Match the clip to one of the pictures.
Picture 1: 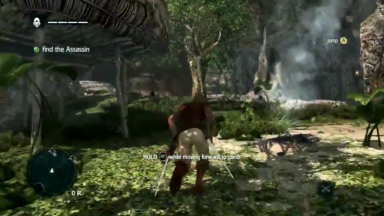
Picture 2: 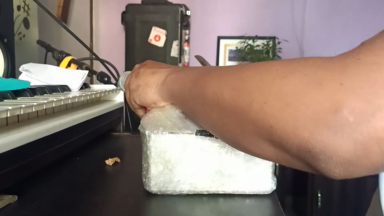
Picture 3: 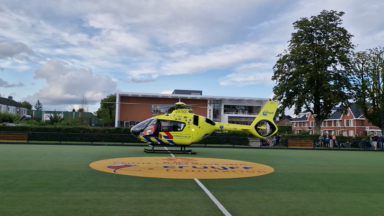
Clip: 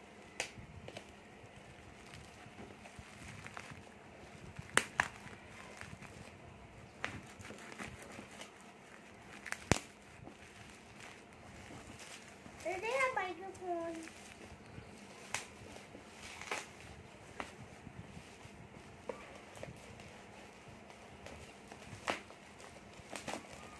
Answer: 2